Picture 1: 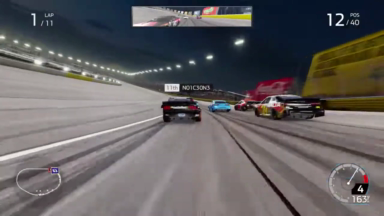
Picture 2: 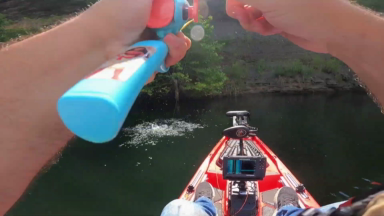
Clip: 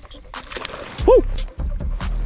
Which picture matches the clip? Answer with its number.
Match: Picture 2